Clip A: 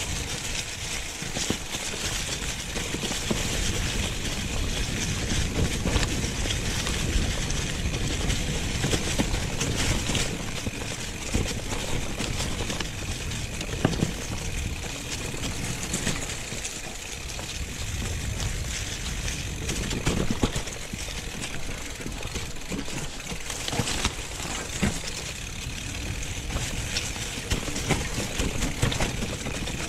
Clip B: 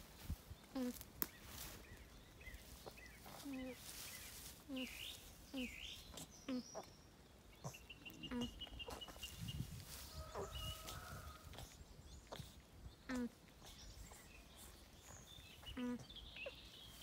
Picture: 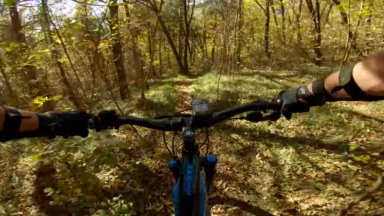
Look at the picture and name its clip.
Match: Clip A